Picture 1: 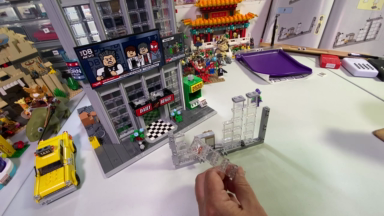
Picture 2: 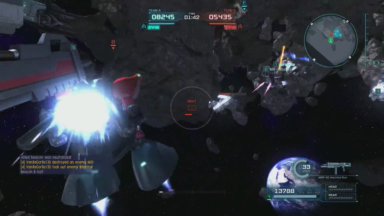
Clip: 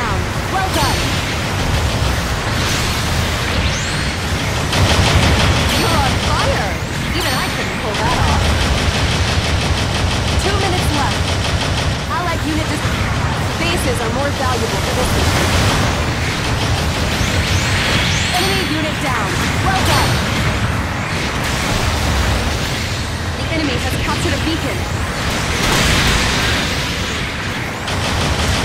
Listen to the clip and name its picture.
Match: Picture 2